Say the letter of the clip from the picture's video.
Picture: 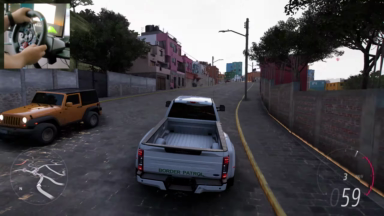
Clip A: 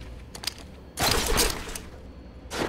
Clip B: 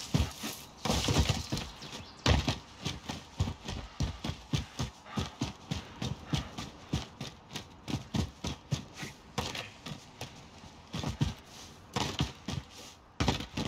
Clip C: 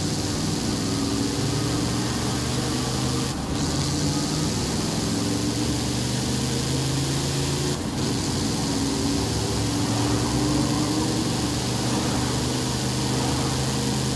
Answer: C